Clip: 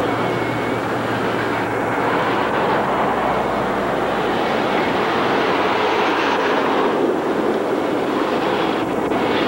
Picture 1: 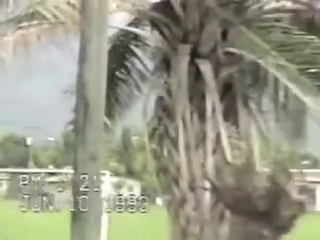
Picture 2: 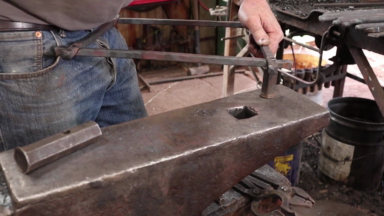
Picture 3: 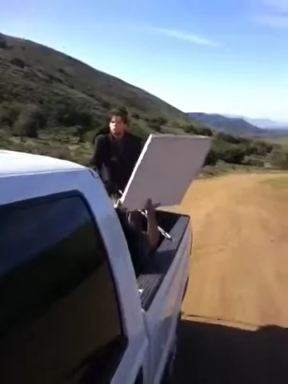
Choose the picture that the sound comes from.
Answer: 1